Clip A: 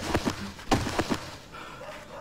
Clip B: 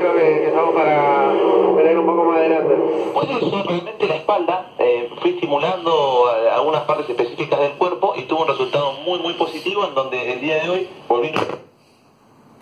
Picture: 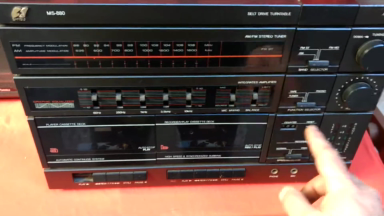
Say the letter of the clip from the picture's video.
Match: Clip B